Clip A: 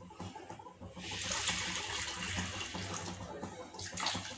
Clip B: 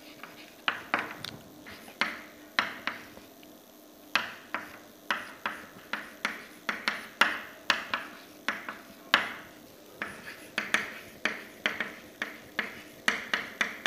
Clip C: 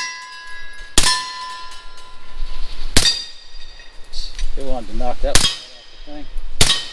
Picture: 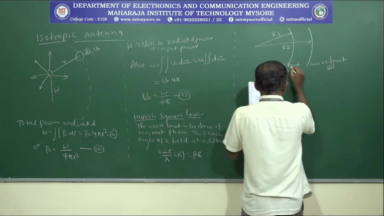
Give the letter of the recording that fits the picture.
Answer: B